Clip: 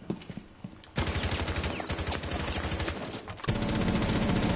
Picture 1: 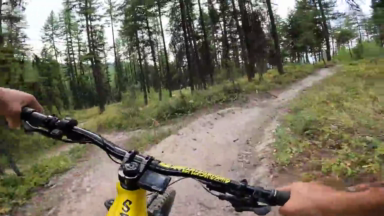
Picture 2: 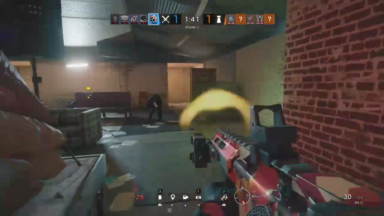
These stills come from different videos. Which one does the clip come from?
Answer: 2